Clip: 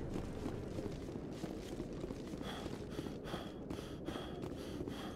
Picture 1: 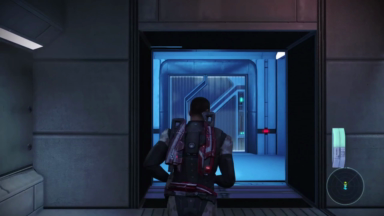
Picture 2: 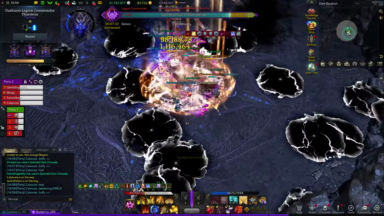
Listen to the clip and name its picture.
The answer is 1